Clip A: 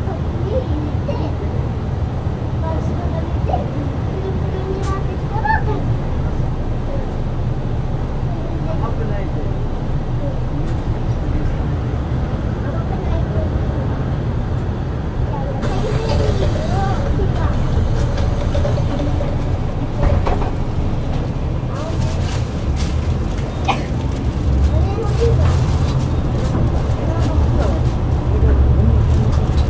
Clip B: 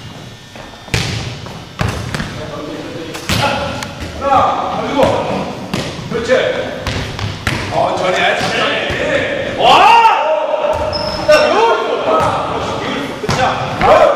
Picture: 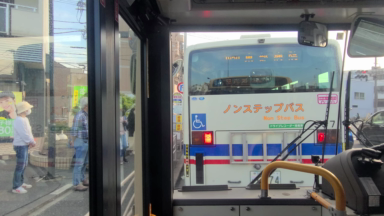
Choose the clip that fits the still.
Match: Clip A